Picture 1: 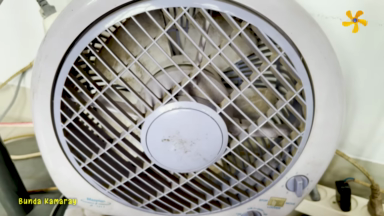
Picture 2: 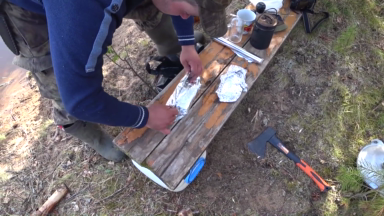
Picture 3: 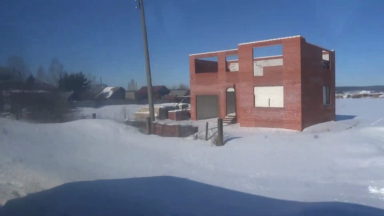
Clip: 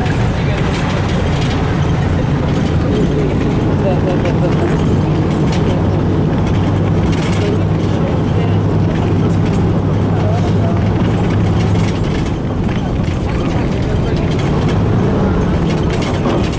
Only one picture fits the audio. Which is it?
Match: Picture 3